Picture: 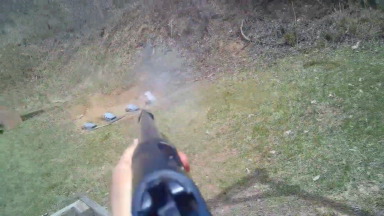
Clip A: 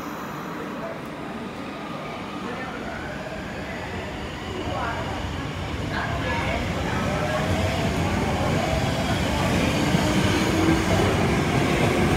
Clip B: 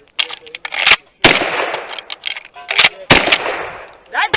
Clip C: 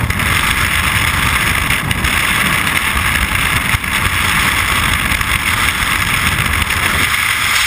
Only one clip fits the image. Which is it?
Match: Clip B